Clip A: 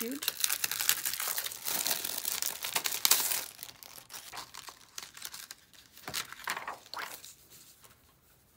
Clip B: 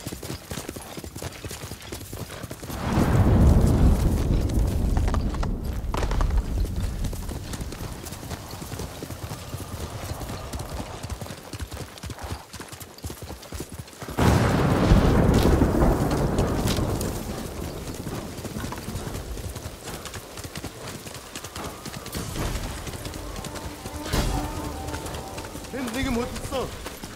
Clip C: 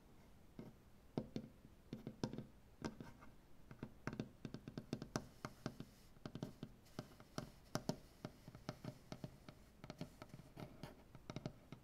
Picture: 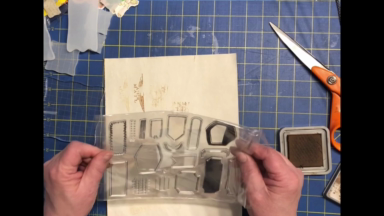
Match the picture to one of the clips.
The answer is A